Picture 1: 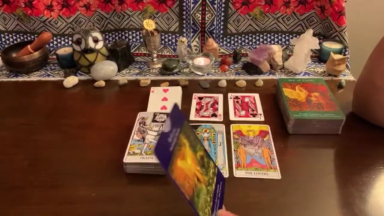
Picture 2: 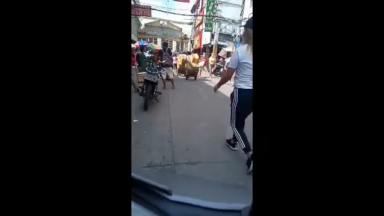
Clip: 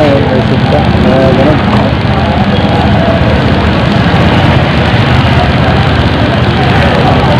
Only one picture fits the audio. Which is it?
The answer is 2